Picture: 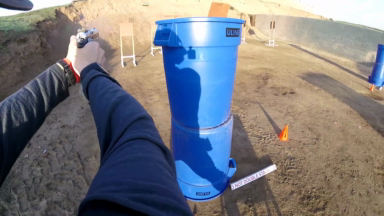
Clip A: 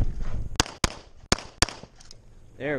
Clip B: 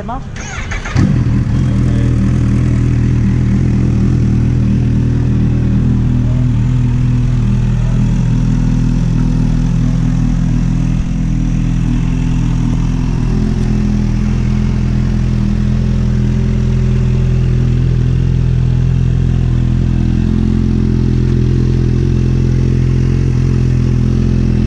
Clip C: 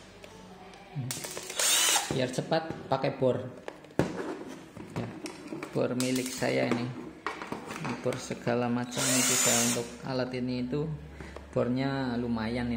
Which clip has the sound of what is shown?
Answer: A